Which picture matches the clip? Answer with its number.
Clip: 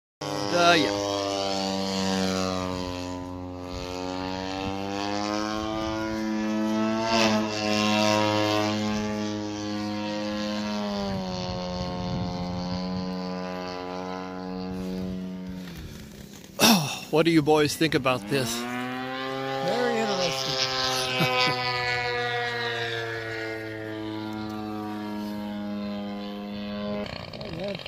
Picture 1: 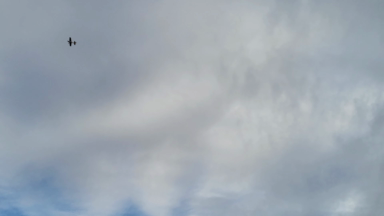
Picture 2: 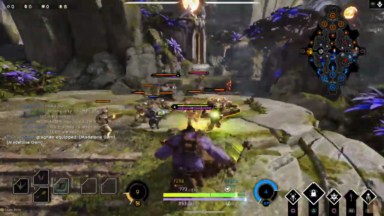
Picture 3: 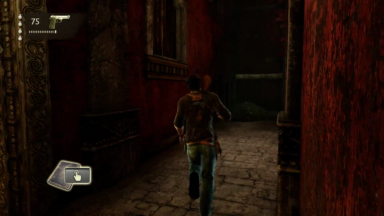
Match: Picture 1